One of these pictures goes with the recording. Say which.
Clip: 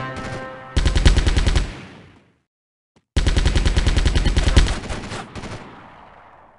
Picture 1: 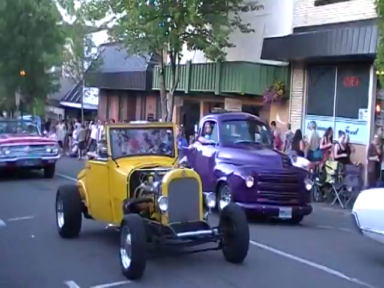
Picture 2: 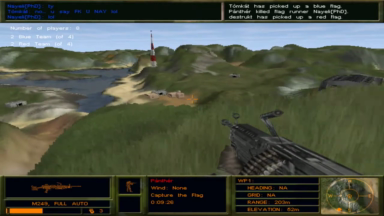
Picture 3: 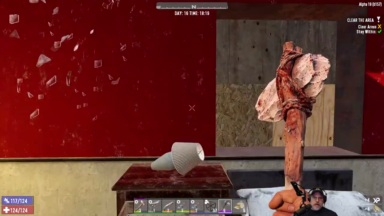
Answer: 2